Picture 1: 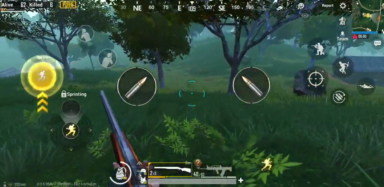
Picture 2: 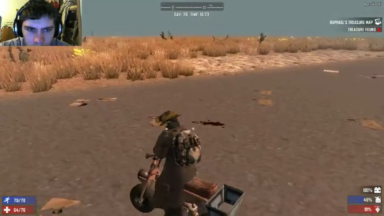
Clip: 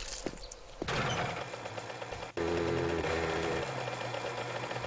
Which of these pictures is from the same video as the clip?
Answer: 2